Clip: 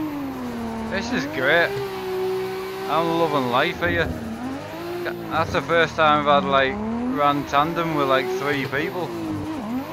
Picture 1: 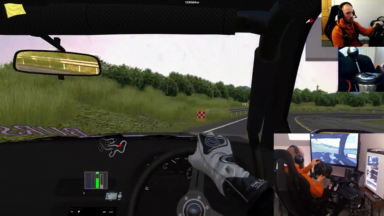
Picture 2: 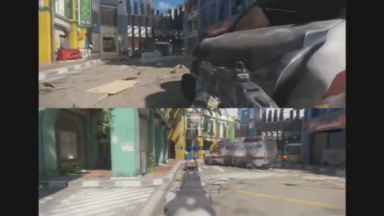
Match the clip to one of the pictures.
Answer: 1